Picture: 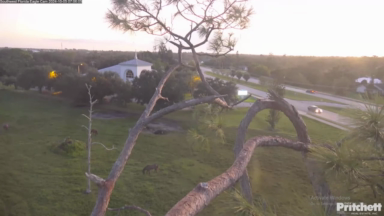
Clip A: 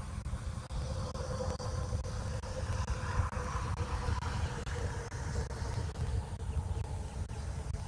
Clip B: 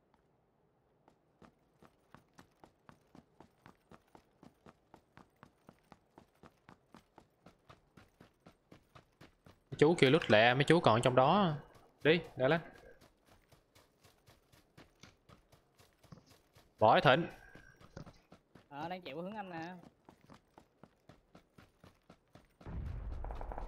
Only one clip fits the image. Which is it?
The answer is A